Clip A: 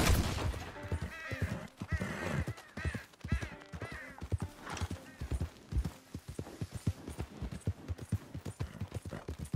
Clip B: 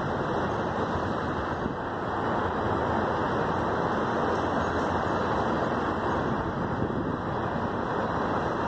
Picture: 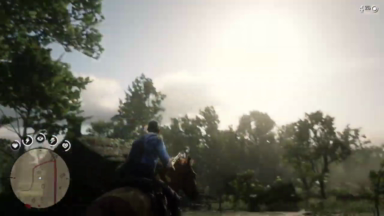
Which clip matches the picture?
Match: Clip A